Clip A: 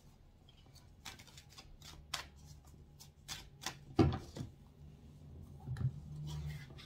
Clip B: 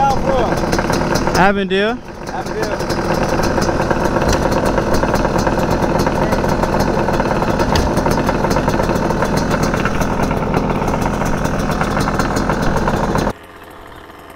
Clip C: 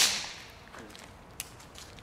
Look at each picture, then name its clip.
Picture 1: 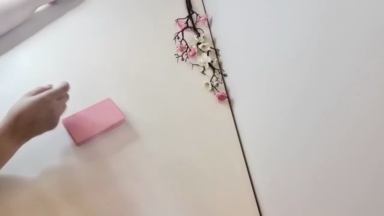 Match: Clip A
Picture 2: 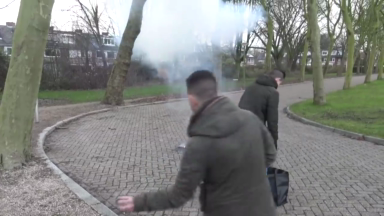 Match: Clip C